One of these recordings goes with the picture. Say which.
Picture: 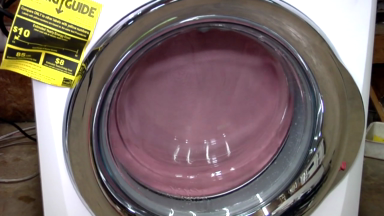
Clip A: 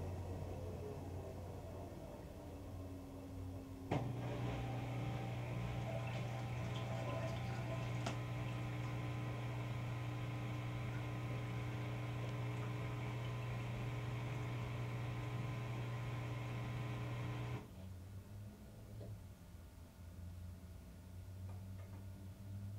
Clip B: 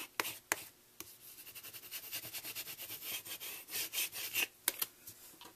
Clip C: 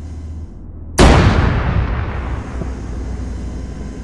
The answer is A